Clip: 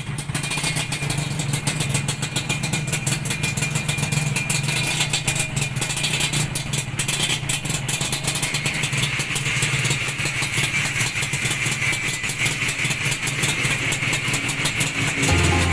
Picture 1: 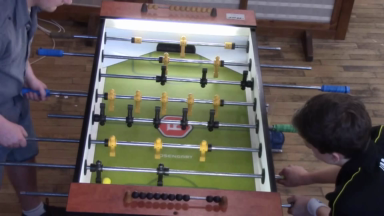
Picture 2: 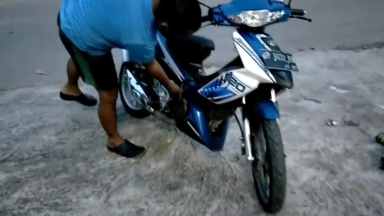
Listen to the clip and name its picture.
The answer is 2